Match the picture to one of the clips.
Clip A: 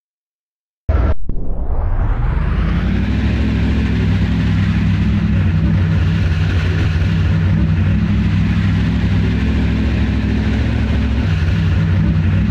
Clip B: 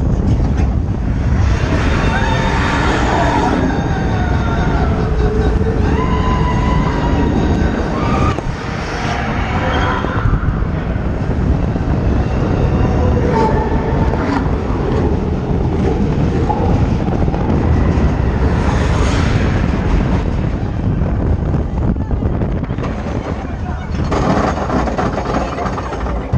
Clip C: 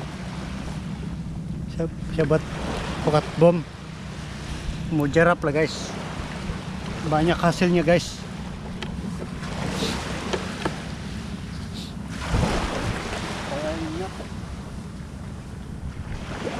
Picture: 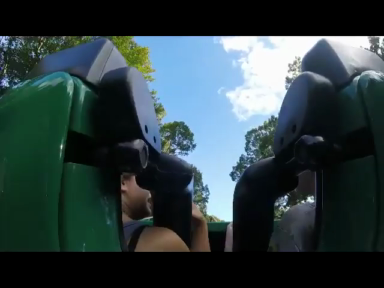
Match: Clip B